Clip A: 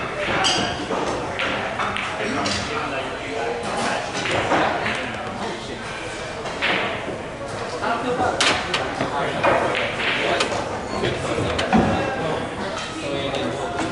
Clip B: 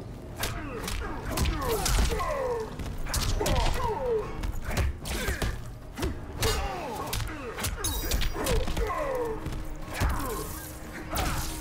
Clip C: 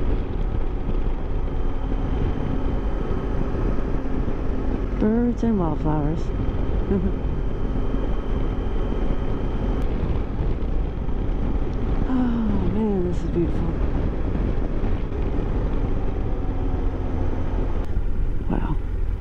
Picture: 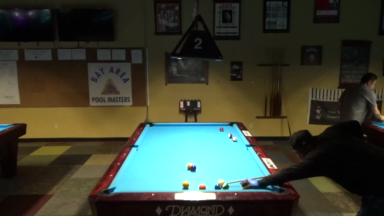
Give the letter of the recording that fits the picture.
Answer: A